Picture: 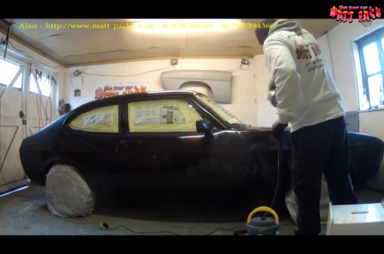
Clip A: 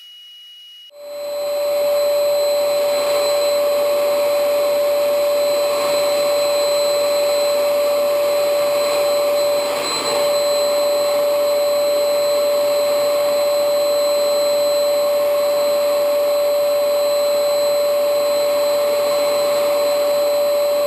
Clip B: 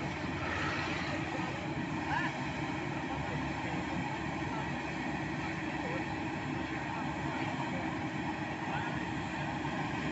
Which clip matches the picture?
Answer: A